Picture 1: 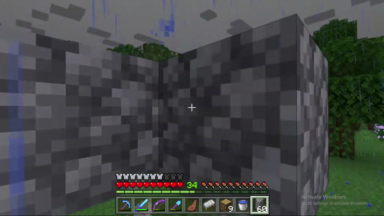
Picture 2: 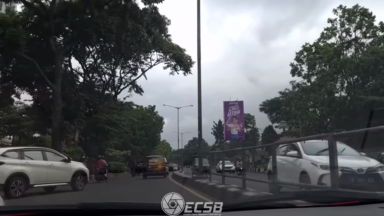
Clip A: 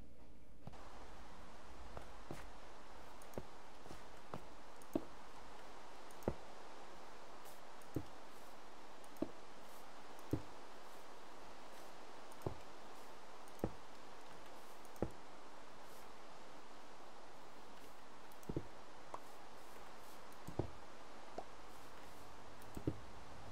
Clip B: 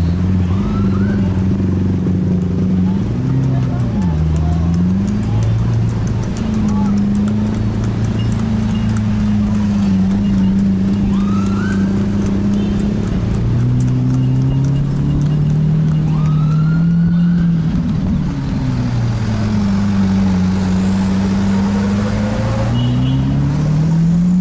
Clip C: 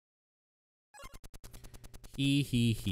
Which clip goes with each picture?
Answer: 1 A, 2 B